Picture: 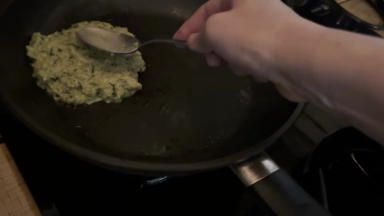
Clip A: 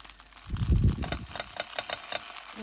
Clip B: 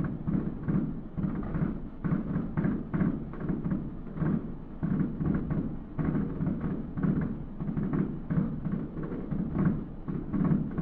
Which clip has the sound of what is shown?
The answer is A